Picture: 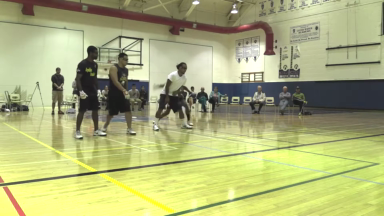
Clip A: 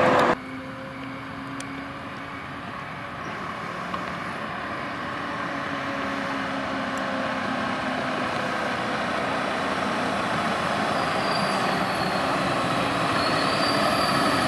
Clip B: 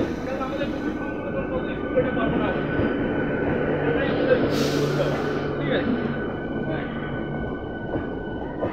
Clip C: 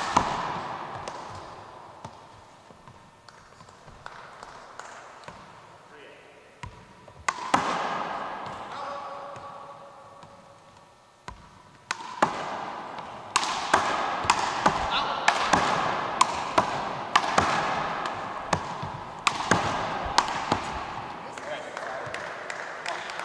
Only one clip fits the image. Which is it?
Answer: C